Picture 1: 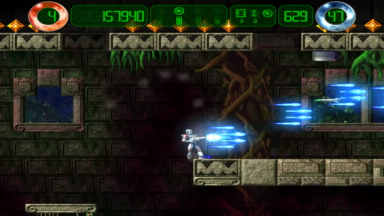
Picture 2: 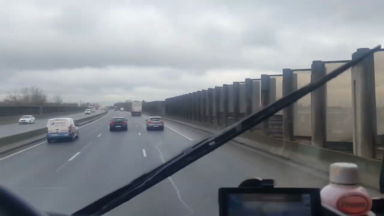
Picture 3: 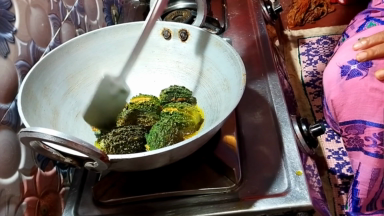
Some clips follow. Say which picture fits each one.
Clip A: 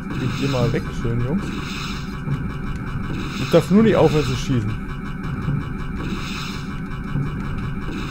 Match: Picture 1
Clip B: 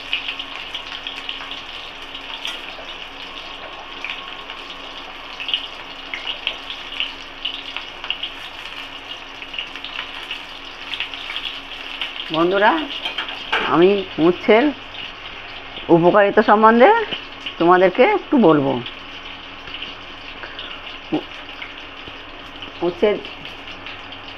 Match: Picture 3